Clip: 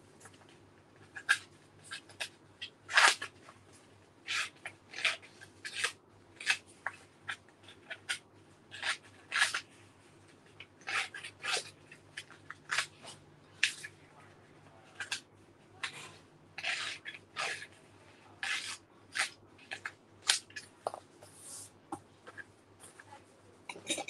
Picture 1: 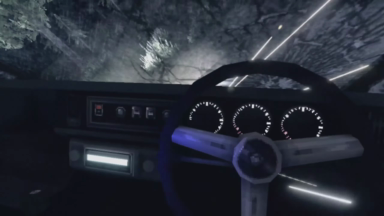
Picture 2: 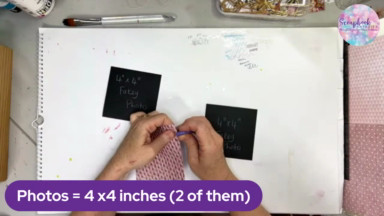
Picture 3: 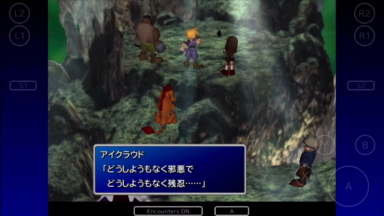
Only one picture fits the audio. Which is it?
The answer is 2